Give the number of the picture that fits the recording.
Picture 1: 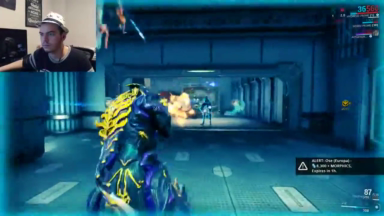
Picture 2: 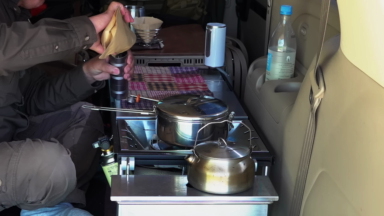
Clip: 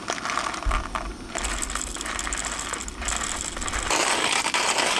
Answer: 2